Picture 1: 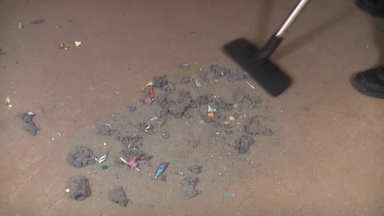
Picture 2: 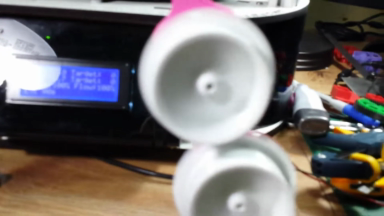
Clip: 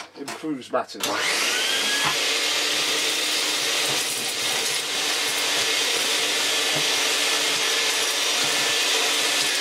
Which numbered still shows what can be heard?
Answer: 1